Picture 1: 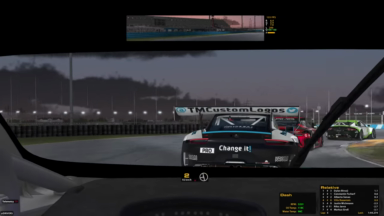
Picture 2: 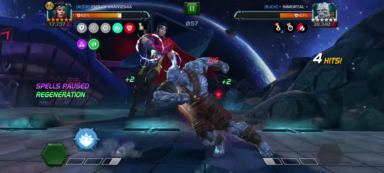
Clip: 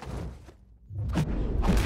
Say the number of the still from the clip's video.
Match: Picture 2